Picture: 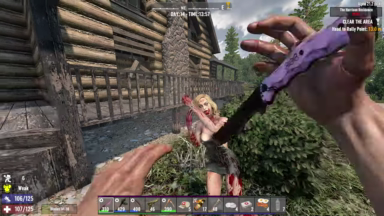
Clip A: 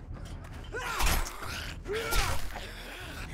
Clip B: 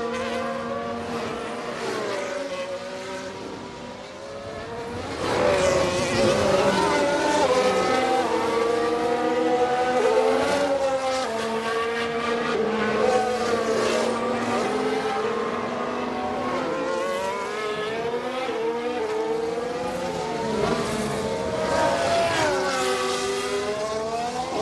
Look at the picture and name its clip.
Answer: A